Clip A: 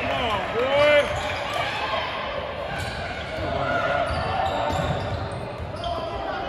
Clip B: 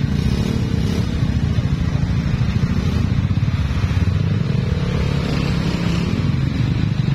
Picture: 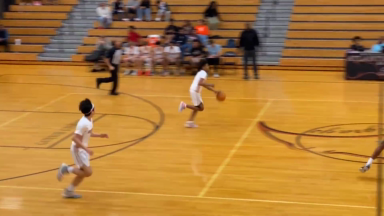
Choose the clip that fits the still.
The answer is A